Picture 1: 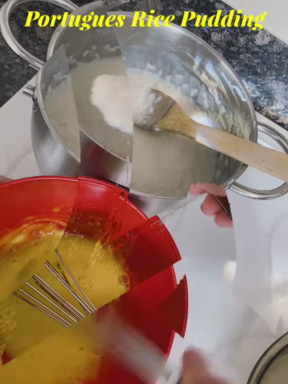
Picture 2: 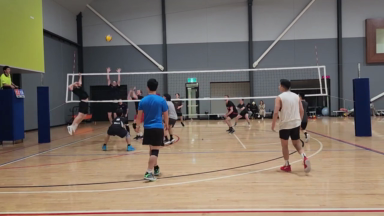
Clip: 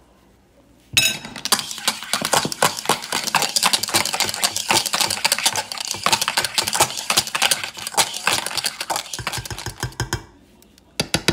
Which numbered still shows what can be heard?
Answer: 1